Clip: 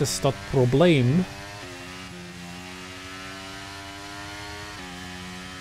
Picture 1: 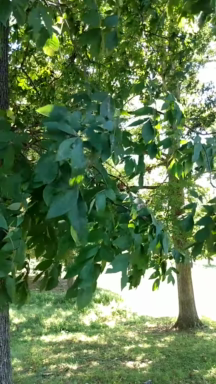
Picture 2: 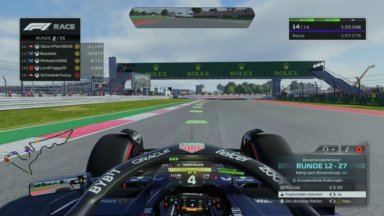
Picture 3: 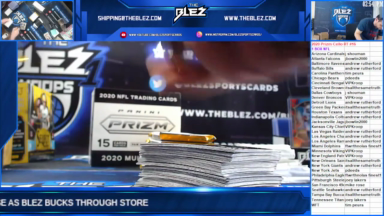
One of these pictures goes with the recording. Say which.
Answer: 2